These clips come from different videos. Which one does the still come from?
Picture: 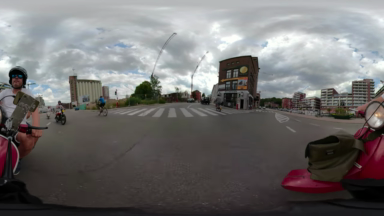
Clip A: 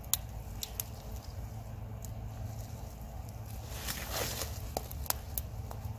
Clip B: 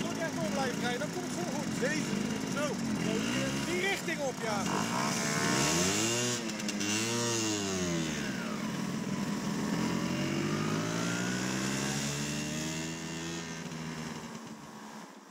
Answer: B